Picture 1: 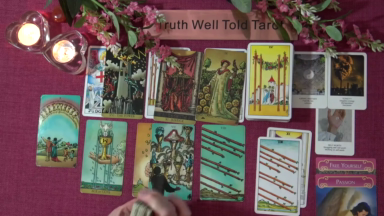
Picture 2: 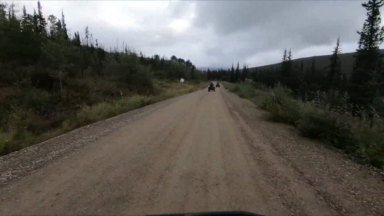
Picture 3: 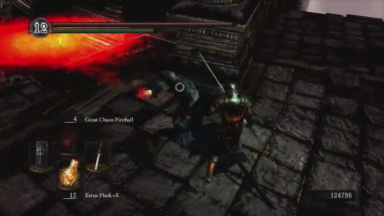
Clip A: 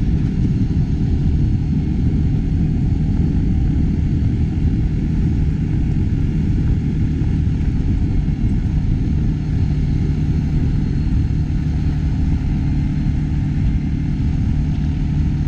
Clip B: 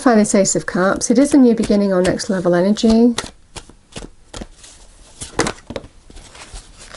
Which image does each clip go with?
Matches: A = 2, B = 1